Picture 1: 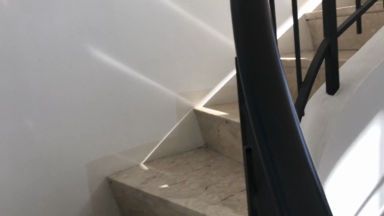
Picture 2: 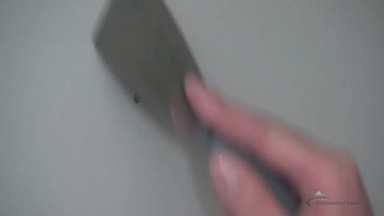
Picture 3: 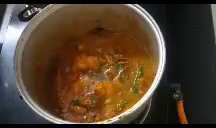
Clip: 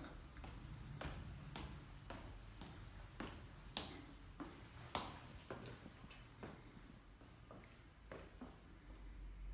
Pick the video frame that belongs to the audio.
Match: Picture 1